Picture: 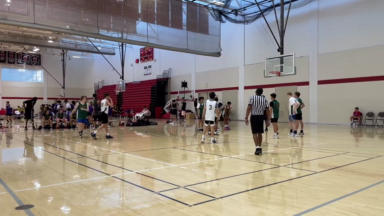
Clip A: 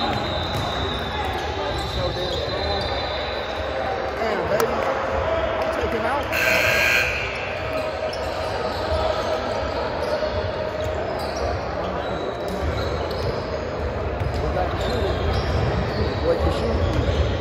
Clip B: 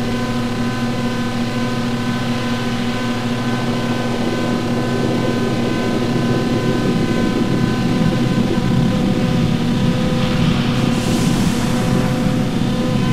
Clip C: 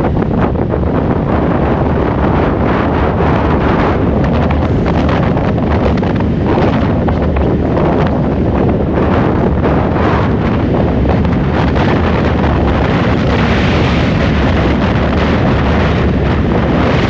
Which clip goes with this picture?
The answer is A